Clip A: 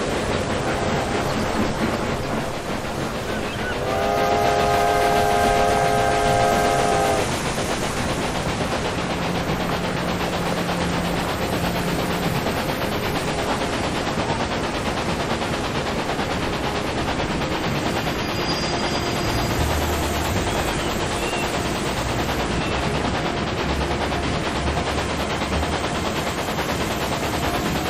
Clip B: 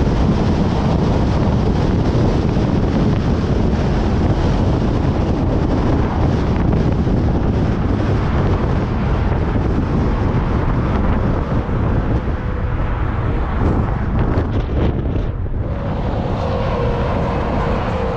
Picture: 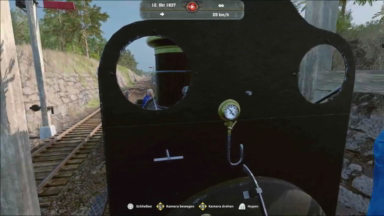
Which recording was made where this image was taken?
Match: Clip A